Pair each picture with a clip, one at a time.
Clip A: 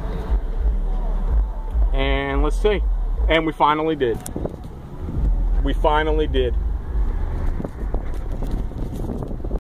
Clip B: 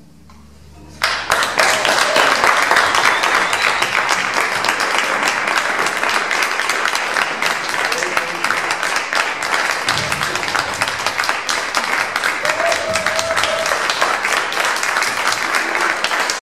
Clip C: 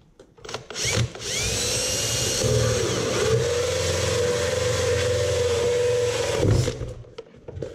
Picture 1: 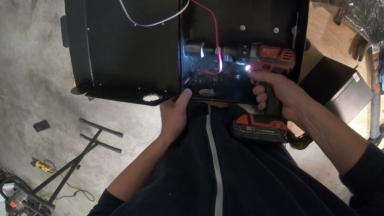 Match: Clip C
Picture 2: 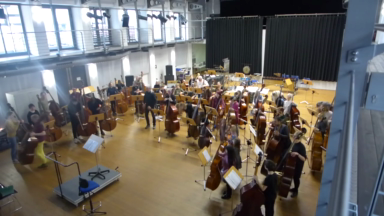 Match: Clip B